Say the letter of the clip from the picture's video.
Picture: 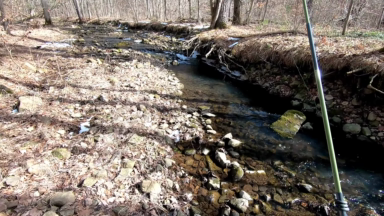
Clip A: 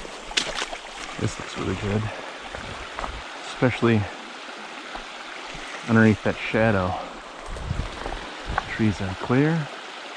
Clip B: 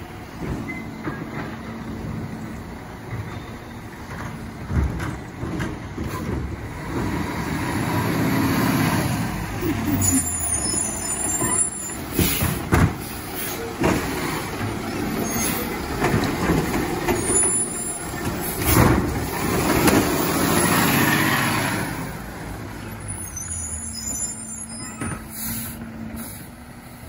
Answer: A